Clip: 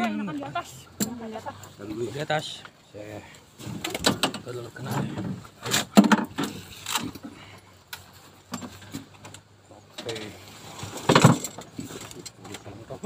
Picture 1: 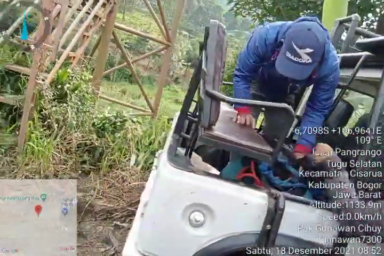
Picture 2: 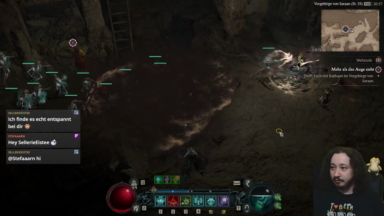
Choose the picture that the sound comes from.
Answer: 1